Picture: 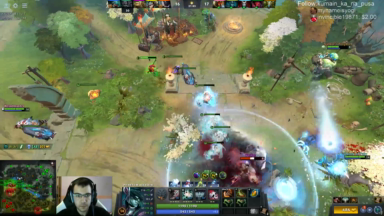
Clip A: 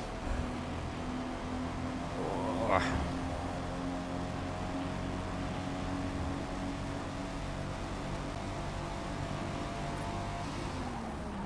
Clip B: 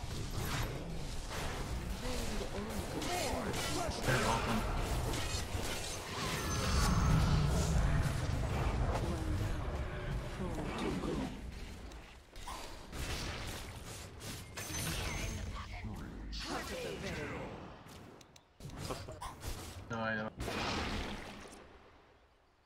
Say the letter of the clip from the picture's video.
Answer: B